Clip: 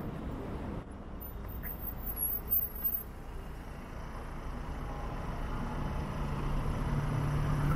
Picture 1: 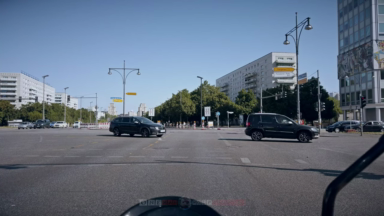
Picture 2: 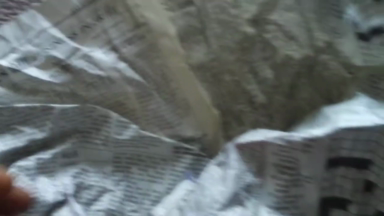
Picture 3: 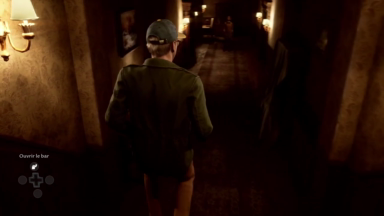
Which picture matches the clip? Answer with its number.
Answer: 1